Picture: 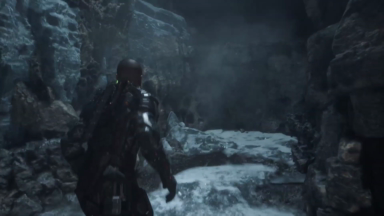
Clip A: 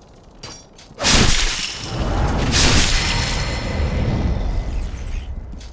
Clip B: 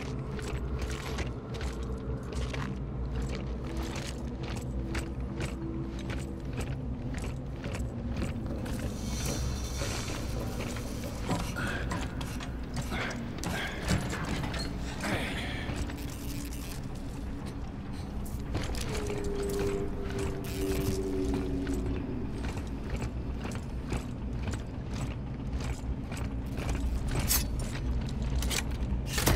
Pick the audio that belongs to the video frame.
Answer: B